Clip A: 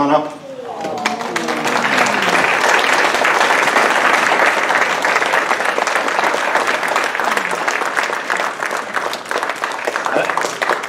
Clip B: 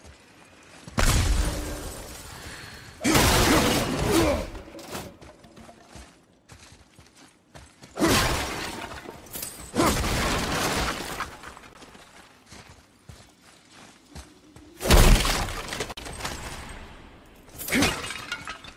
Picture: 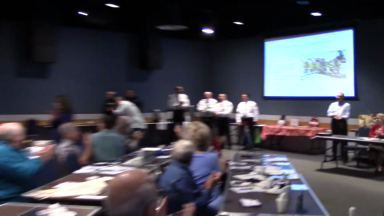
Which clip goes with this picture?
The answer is A